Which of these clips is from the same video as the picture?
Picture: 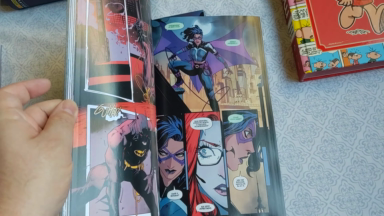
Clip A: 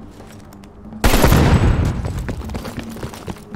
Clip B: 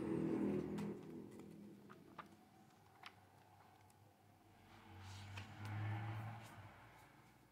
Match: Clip B